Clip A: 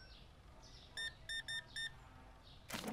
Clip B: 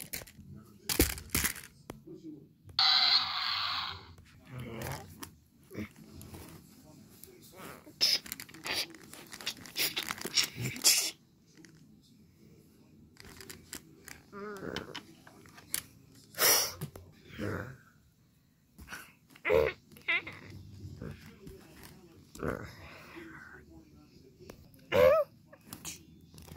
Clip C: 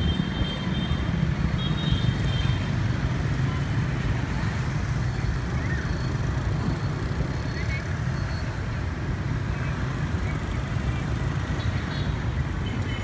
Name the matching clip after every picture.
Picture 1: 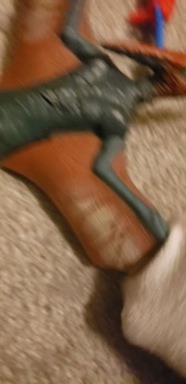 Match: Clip B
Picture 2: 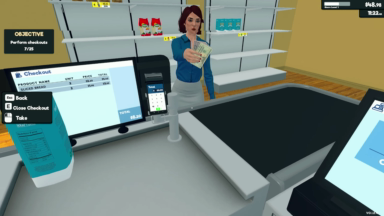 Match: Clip A